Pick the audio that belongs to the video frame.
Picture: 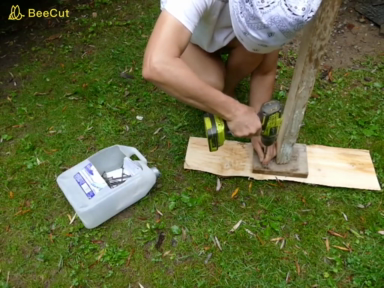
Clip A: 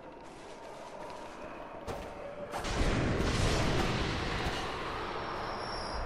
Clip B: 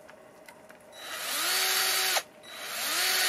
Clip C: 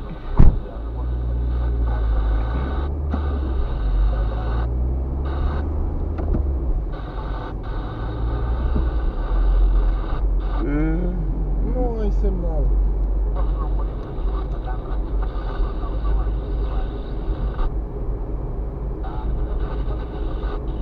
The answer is B